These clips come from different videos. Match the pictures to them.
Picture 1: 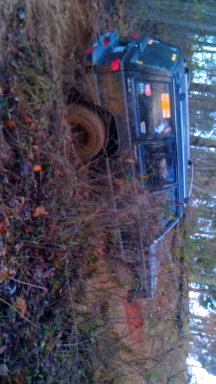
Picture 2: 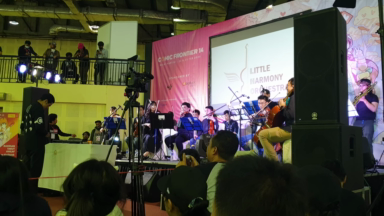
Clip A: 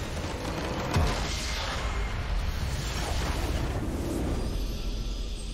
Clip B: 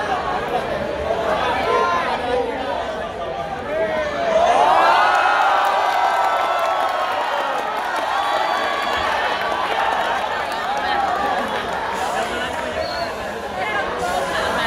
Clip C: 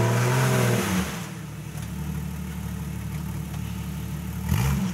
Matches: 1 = C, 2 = B